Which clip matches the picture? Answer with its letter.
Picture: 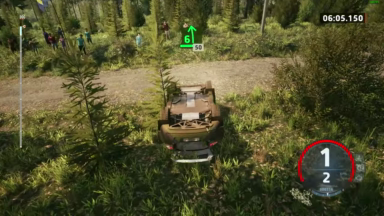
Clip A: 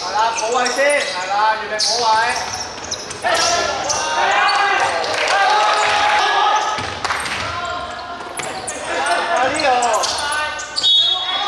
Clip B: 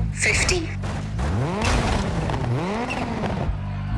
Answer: B